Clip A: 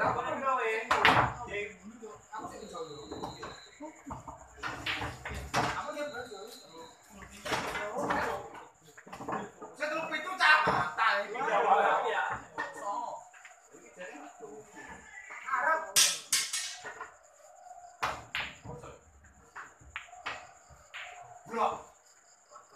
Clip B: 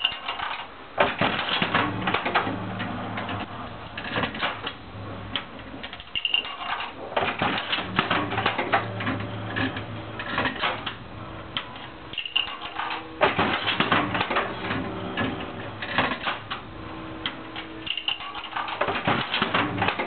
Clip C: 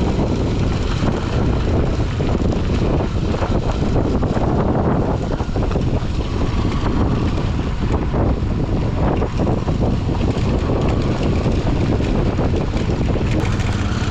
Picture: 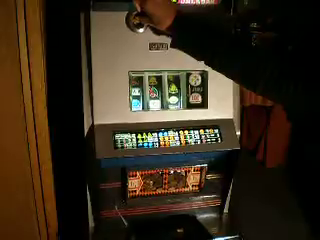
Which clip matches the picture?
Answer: B